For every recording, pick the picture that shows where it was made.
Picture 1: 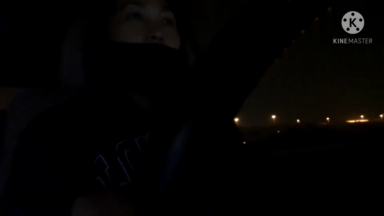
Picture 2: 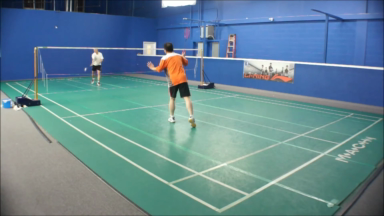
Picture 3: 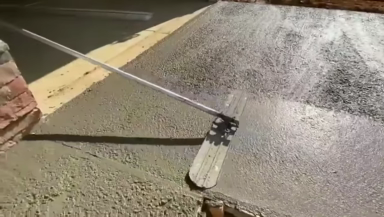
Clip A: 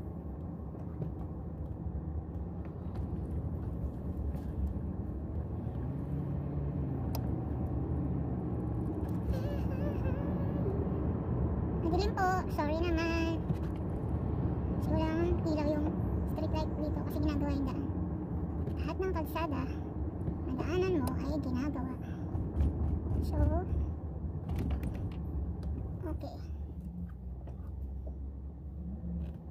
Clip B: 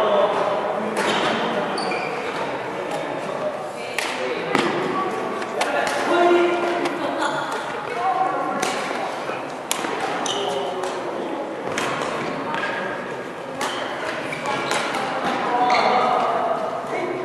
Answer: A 1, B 2